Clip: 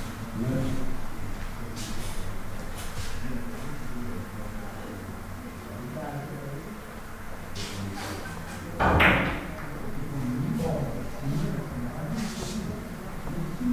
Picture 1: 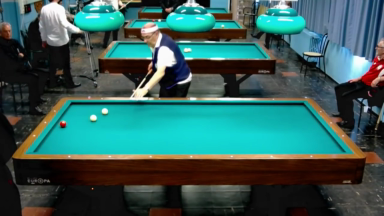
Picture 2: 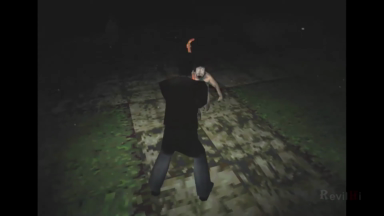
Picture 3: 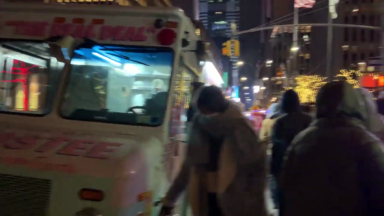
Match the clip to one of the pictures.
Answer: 1